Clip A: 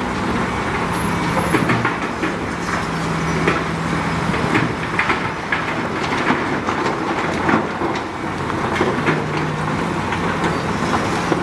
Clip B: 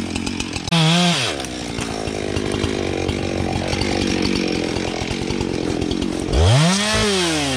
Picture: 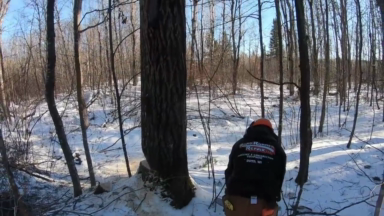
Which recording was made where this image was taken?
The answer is B